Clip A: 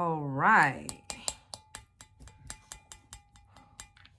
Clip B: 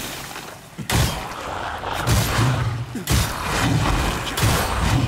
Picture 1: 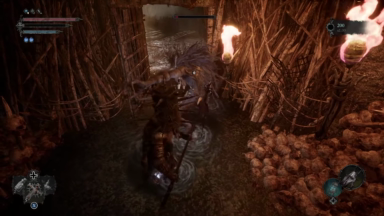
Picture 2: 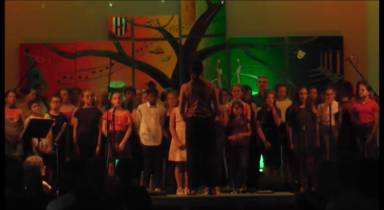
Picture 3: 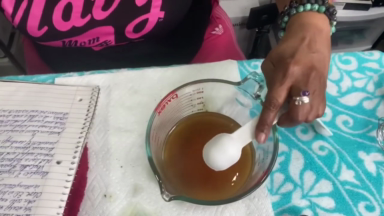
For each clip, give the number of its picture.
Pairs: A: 3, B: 1